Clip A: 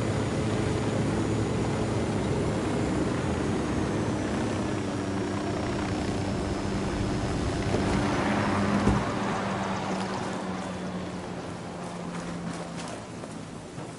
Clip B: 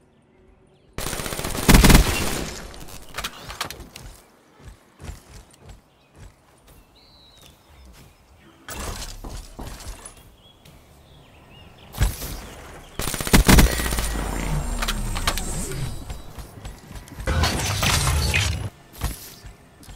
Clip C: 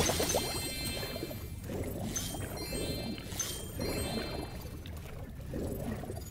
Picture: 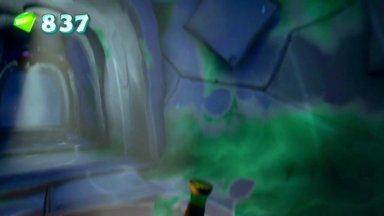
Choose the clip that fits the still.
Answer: C